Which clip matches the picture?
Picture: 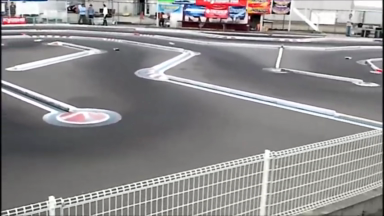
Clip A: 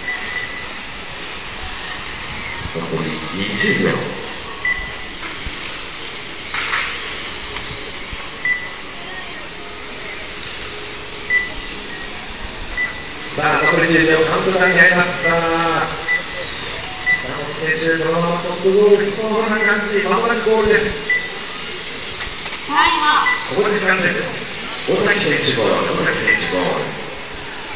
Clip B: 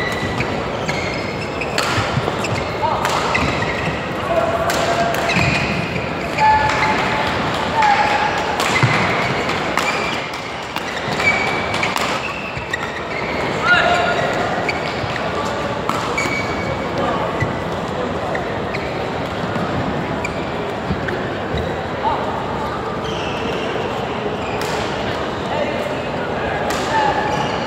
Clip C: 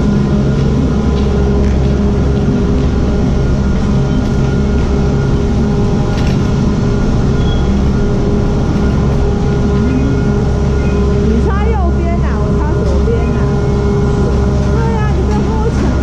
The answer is A